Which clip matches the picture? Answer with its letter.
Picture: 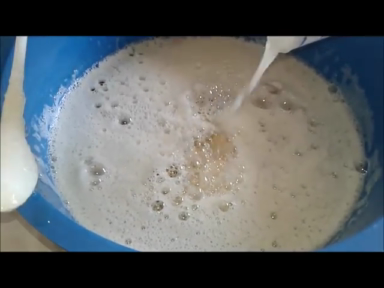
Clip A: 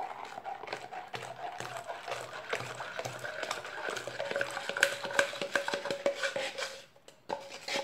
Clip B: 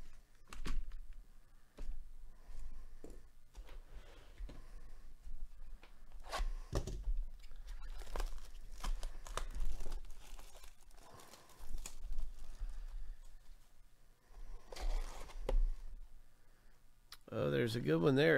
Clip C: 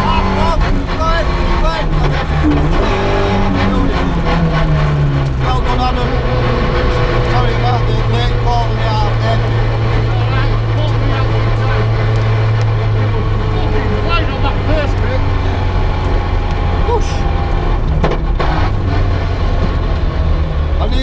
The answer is A